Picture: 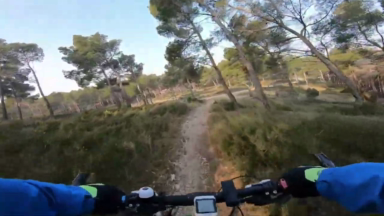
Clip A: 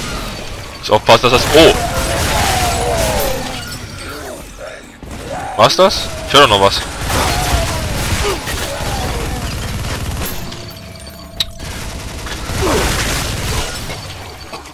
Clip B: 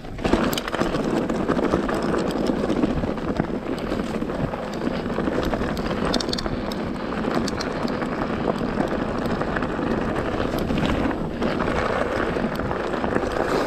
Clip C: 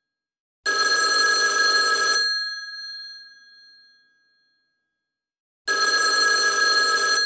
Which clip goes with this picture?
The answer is B